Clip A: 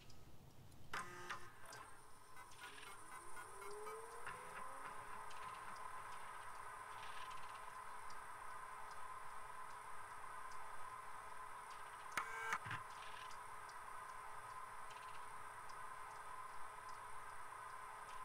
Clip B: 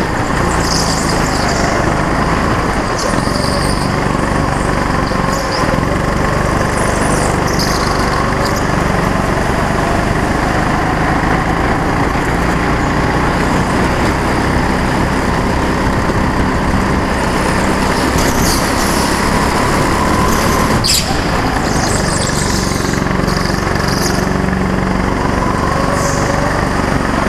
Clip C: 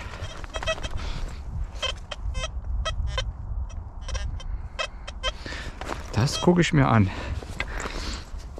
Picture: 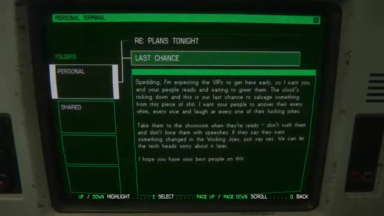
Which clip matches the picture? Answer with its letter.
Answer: A